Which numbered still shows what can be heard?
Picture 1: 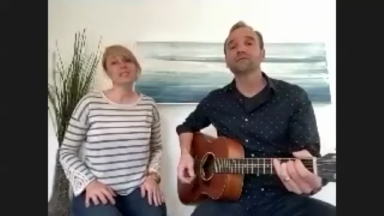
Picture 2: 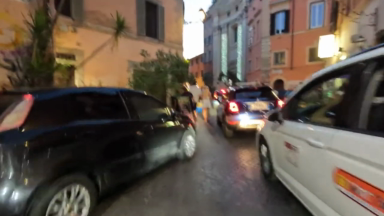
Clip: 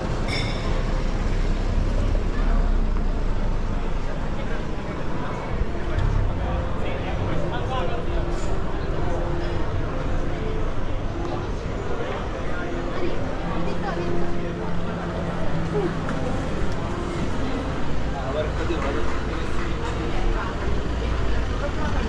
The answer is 2